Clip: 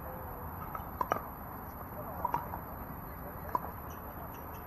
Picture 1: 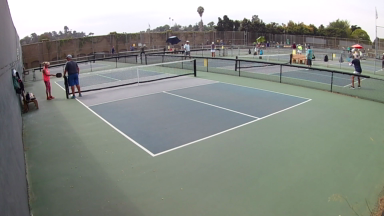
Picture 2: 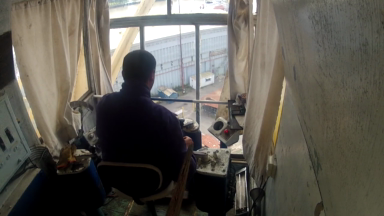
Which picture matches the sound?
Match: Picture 1